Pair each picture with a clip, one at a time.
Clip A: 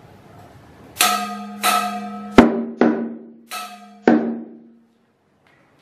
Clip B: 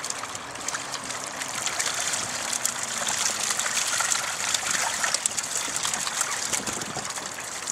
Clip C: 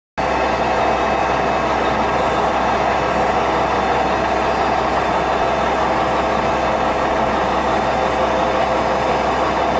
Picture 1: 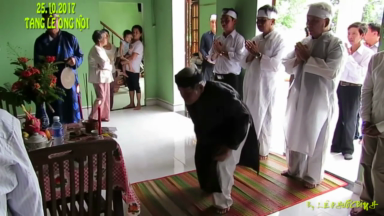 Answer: A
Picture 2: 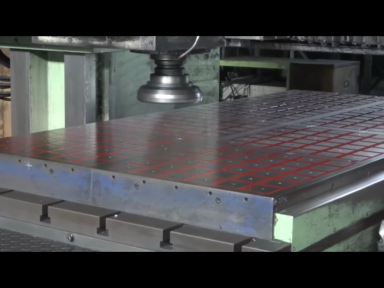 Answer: C